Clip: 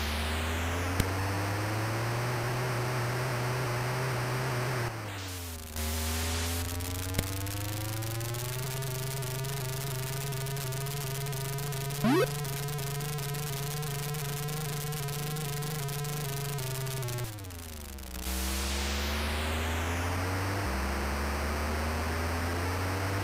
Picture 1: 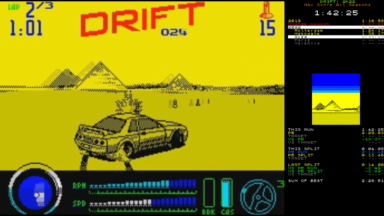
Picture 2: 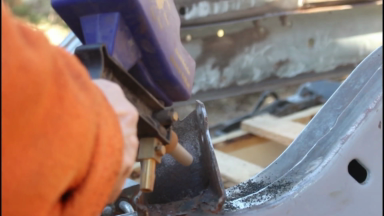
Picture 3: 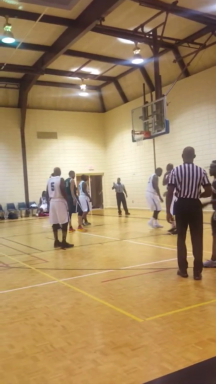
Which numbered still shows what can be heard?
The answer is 1